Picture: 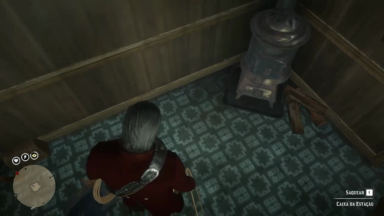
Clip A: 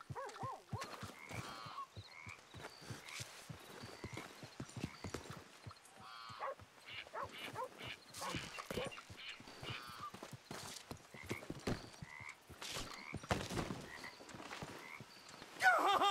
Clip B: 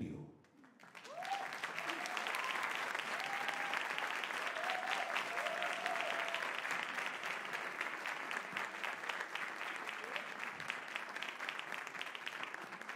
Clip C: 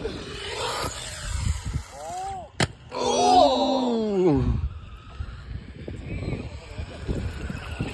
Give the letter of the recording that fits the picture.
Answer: A